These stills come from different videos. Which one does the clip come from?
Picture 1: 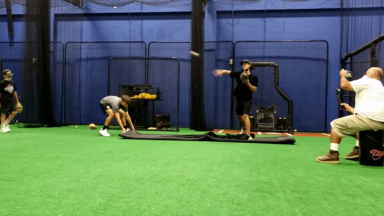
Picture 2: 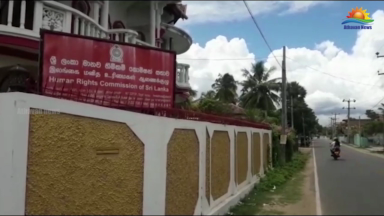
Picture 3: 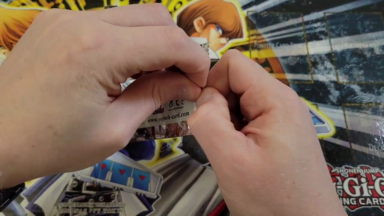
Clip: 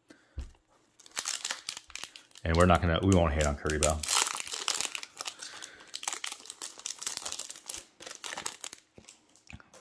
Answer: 3